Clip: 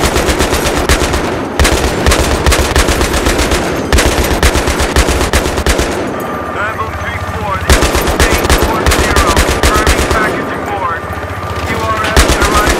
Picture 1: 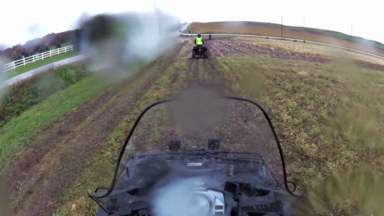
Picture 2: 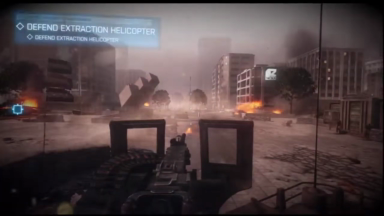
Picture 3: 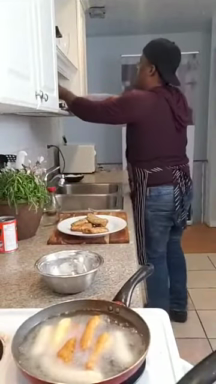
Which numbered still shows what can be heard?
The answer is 2